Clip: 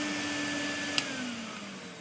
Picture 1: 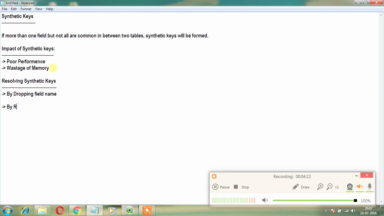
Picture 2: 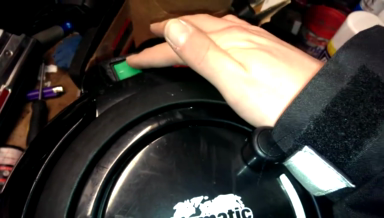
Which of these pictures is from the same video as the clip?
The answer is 2